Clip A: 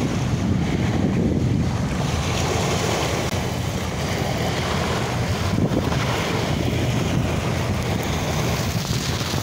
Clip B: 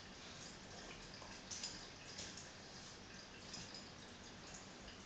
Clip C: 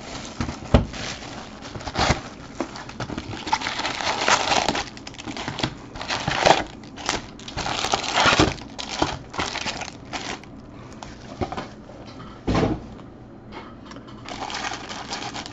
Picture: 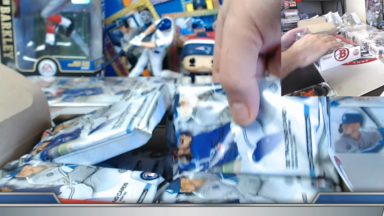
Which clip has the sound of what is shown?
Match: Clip C